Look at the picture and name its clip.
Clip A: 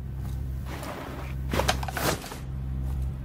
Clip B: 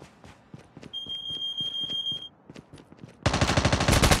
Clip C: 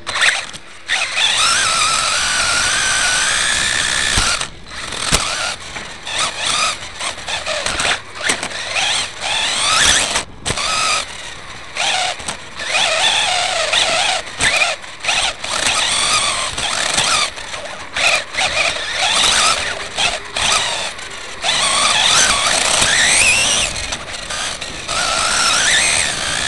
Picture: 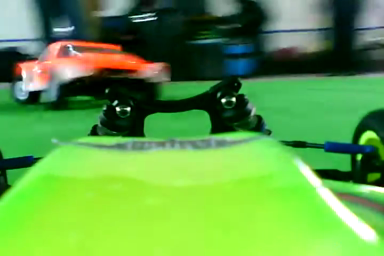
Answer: C